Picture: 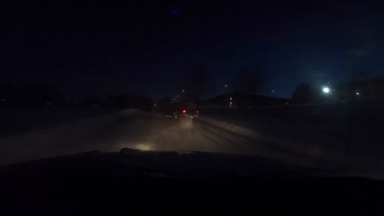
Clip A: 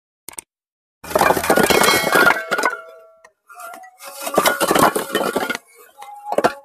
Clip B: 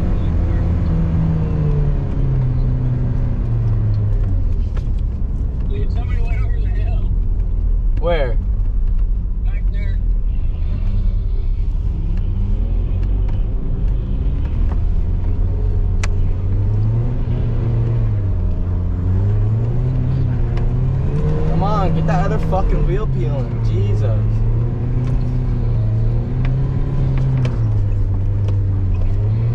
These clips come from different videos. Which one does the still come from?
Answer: B